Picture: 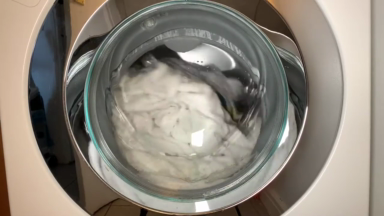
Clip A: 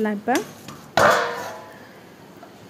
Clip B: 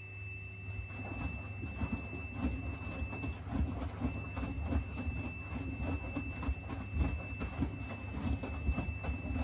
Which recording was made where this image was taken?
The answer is B